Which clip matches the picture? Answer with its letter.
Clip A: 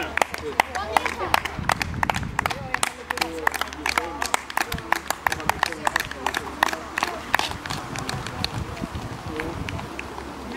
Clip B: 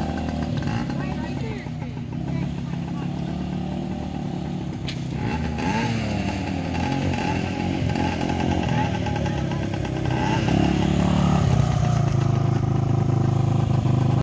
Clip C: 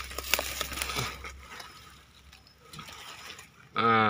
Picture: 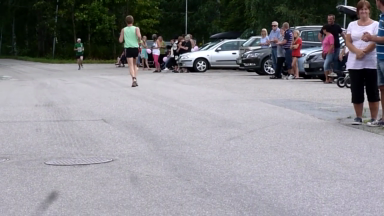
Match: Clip A